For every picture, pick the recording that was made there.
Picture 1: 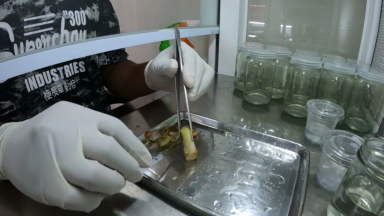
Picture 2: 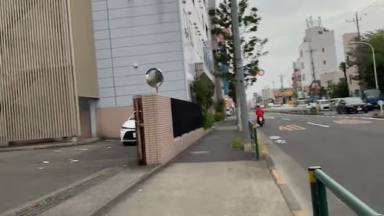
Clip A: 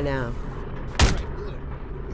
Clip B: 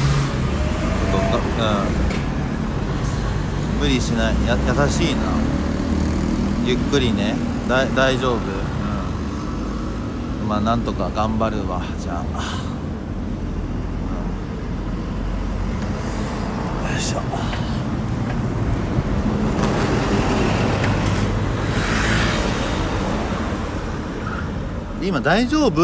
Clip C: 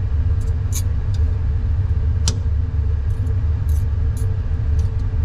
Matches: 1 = C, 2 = B